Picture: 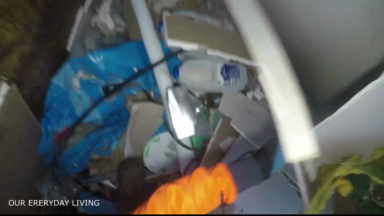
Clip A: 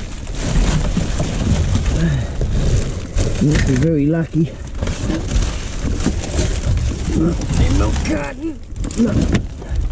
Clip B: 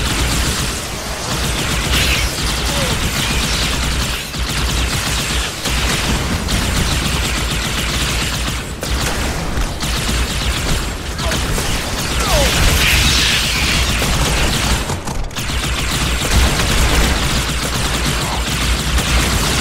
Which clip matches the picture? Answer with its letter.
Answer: A